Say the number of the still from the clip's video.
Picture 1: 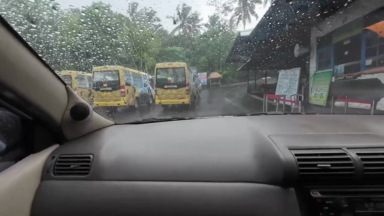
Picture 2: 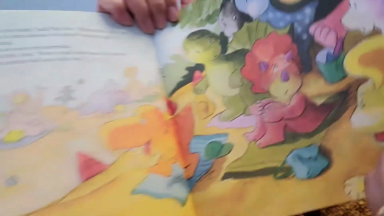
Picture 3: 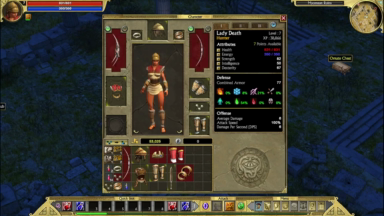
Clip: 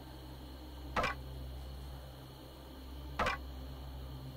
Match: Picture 3